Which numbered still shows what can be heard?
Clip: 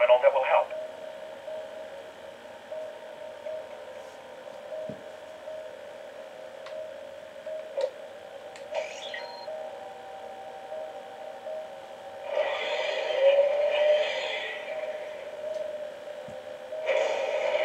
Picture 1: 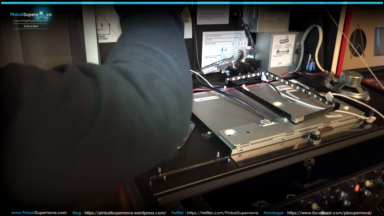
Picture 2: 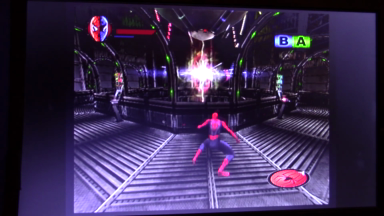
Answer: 2